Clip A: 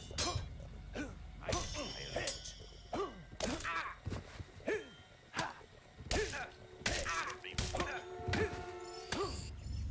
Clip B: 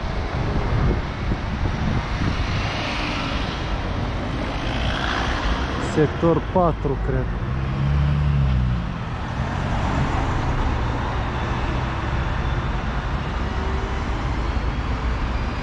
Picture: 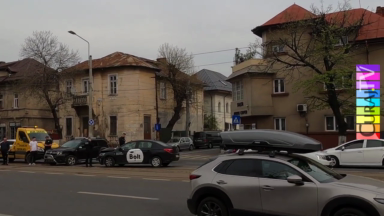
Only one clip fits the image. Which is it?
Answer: B